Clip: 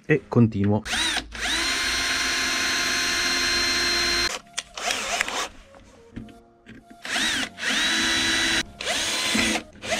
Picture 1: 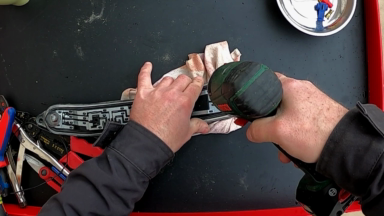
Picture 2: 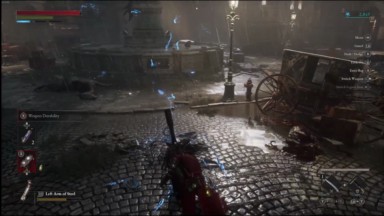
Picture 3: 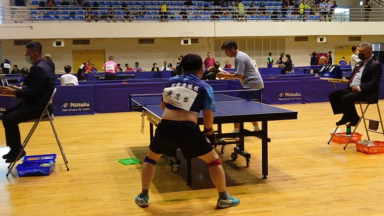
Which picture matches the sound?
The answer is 1